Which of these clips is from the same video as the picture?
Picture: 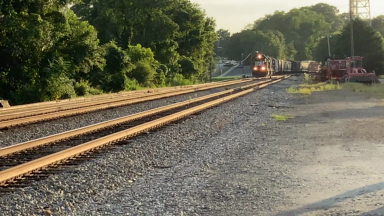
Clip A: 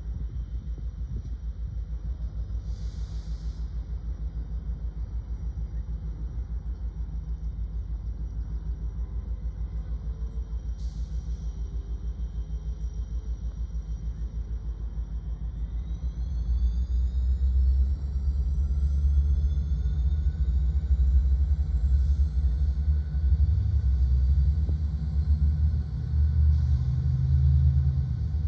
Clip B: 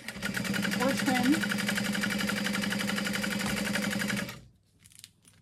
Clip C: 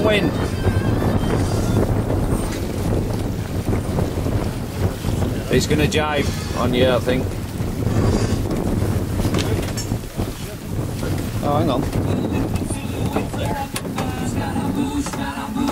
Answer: A